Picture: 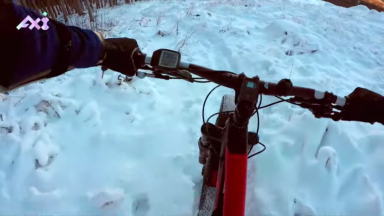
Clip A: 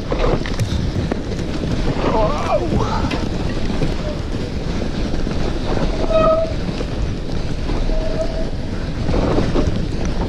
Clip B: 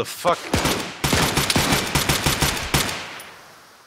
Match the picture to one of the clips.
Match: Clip A